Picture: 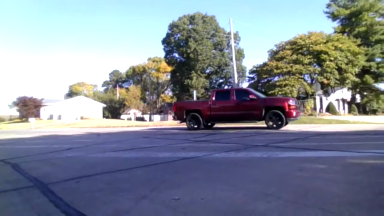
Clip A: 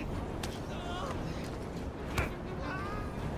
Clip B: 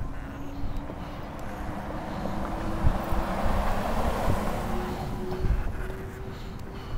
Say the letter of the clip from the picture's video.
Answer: B